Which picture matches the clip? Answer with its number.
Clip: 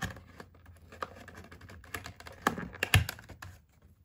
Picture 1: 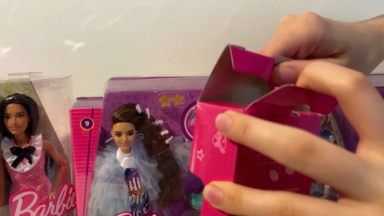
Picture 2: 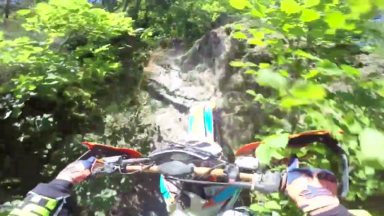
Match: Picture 1